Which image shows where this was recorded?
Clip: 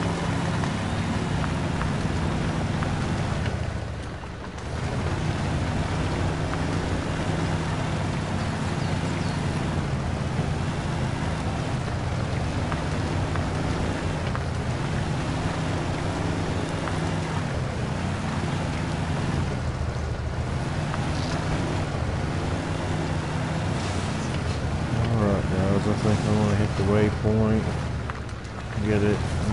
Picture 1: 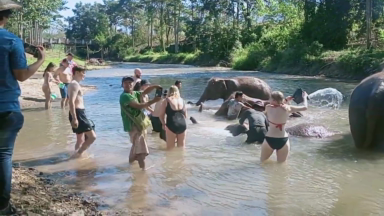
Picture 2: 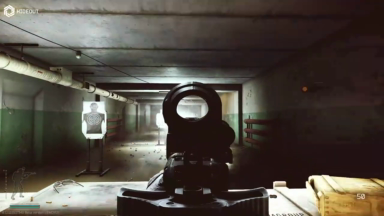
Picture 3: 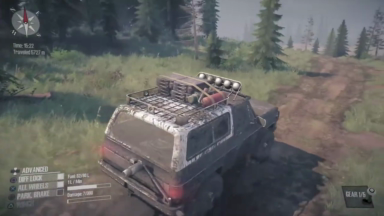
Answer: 3